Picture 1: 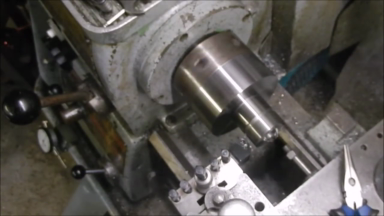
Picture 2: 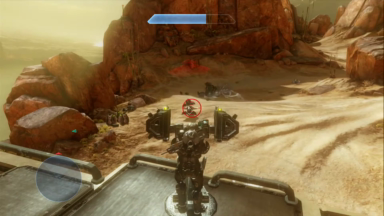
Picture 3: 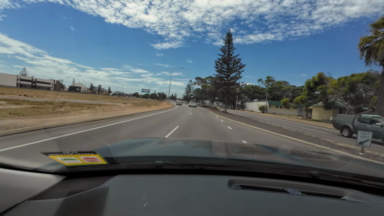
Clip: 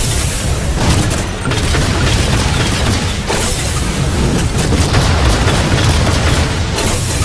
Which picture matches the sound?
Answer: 2